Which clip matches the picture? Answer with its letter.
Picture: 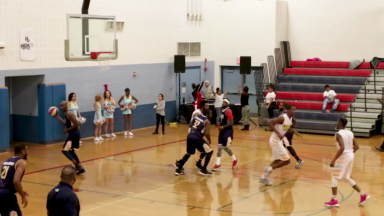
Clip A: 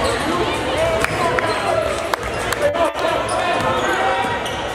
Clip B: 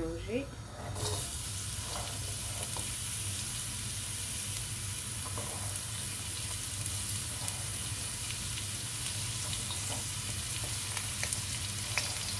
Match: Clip A